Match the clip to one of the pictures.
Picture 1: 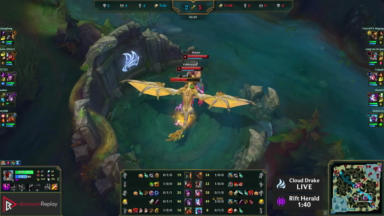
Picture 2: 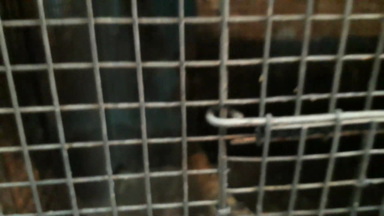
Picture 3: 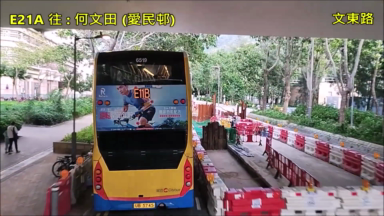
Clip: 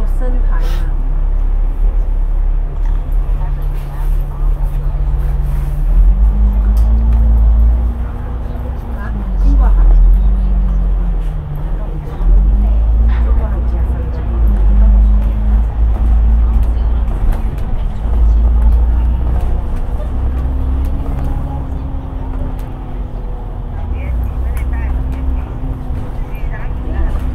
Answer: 3